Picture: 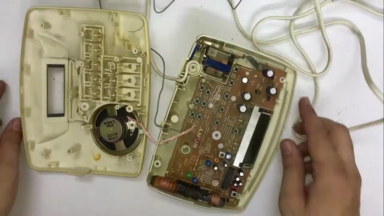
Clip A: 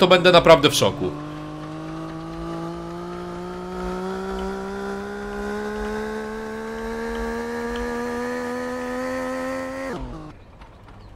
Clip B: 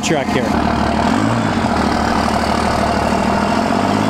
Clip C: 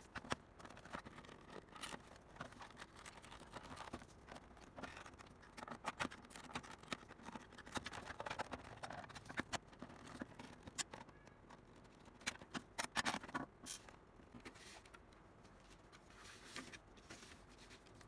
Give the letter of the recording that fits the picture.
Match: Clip C